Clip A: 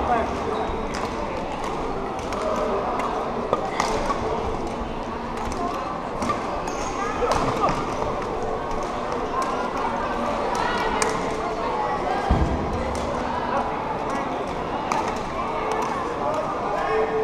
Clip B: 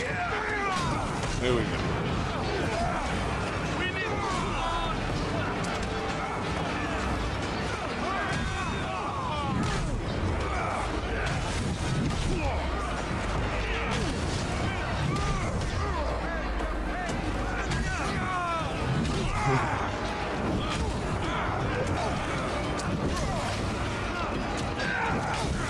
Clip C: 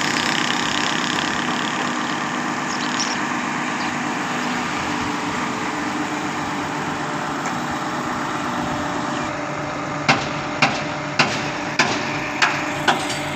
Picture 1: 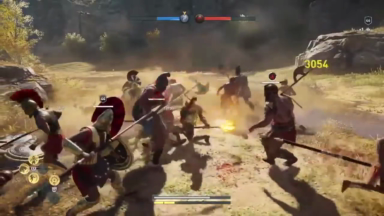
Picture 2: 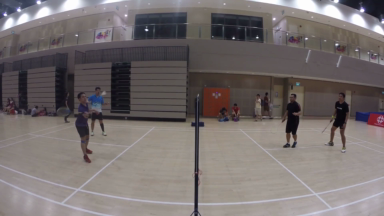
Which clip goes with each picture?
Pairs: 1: B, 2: A